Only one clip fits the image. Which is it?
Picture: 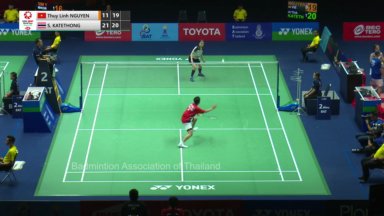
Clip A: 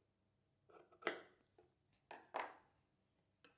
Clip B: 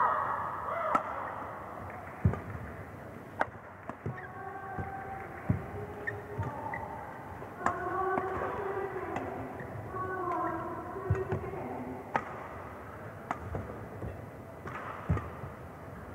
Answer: B